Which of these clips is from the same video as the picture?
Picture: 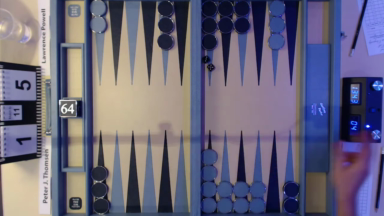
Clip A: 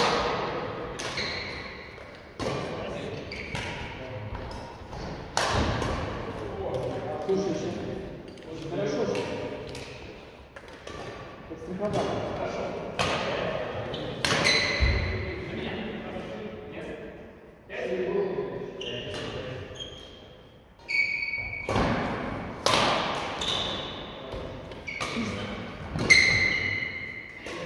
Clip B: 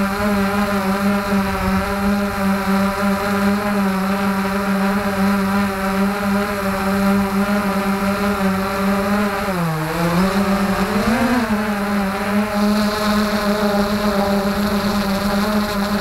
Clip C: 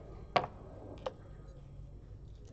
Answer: C